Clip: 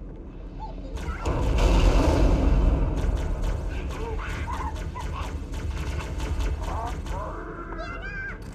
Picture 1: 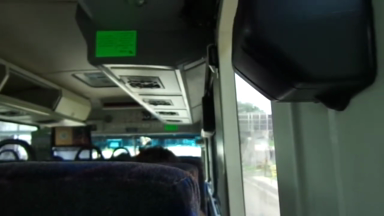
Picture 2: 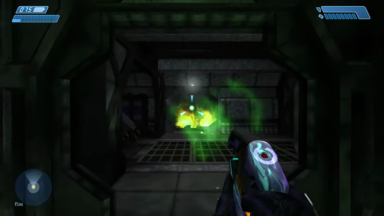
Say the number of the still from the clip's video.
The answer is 2